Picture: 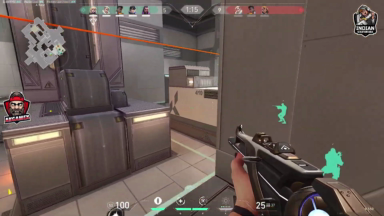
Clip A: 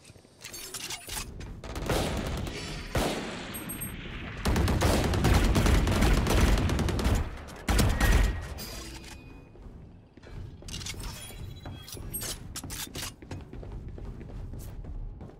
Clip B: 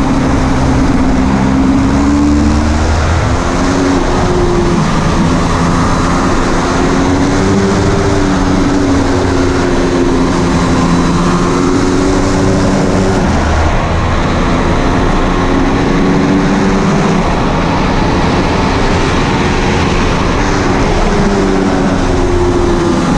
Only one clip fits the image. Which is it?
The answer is A